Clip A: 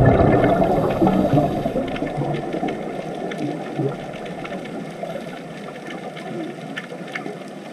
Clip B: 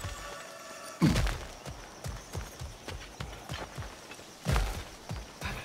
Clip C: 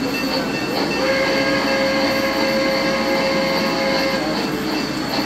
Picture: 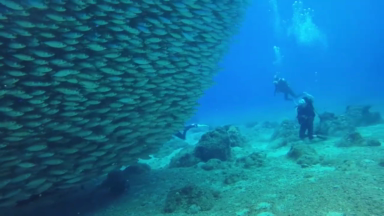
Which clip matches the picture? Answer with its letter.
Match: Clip A